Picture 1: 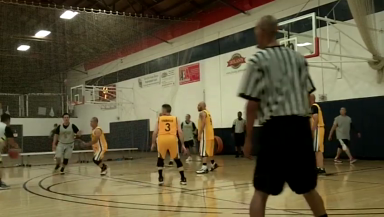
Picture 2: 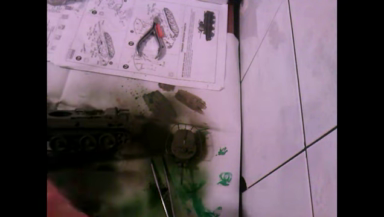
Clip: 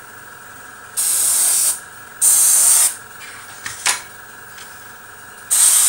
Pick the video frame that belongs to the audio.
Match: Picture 2